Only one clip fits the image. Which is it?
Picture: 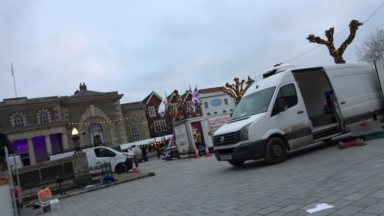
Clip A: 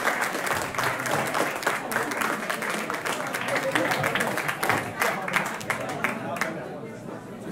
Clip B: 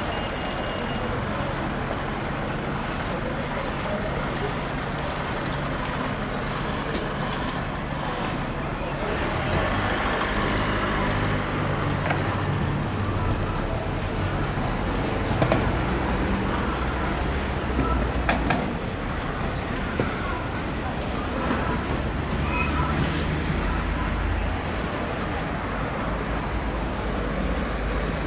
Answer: B